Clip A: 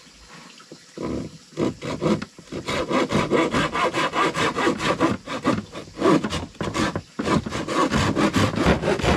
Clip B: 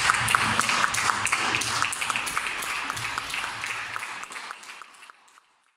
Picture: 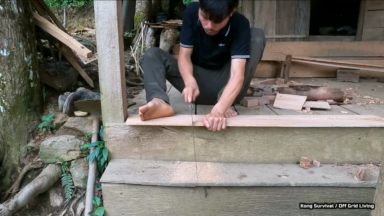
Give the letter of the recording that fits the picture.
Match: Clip A